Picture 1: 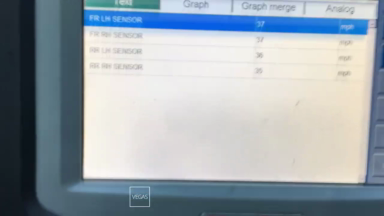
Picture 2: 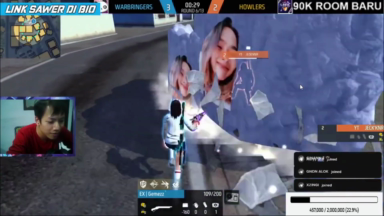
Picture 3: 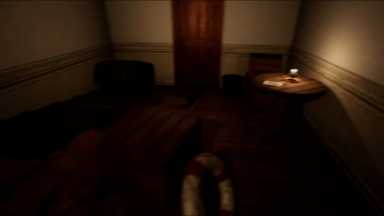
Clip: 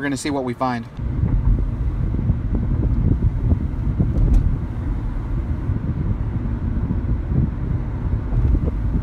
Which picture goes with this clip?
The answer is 1